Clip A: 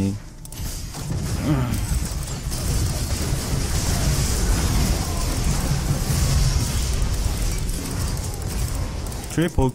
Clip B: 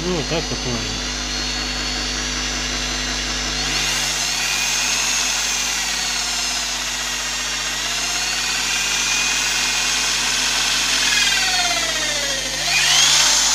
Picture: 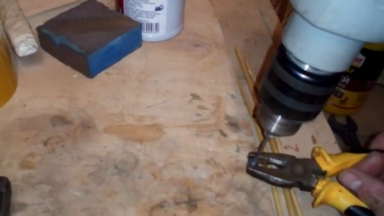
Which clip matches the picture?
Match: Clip B